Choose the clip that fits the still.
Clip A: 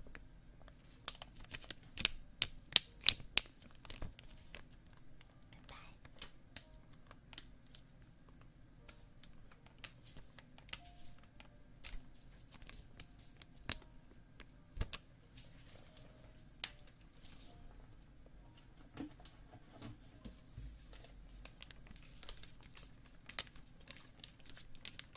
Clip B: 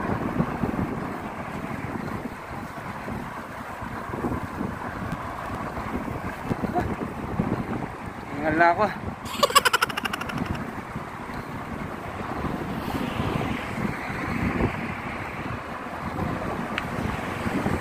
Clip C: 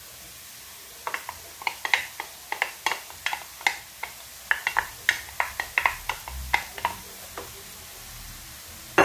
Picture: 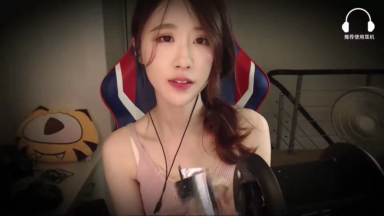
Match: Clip A